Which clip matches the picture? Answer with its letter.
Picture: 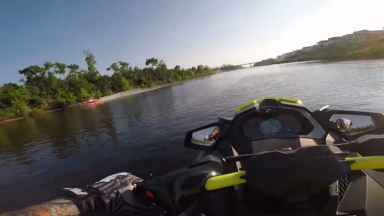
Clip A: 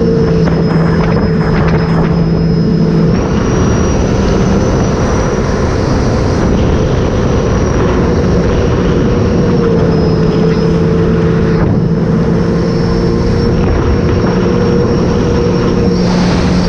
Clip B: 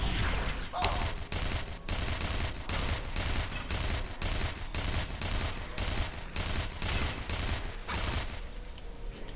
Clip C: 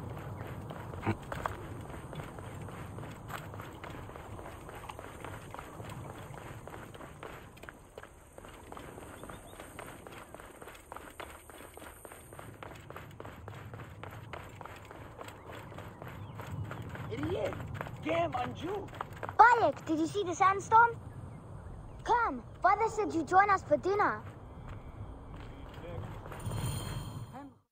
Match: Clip A